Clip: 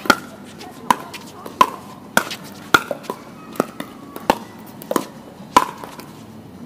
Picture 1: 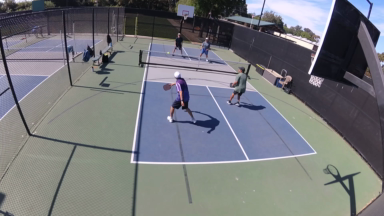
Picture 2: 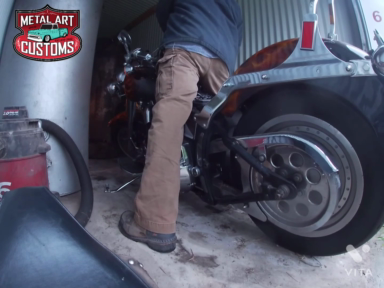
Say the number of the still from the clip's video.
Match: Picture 1